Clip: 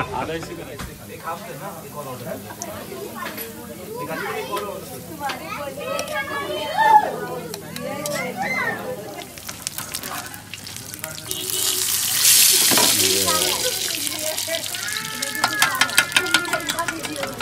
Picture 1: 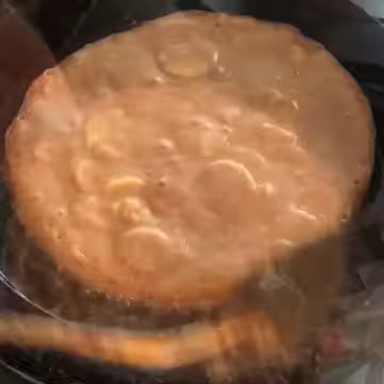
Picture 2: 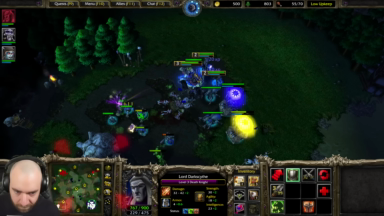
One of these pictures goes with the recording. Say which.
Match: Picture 1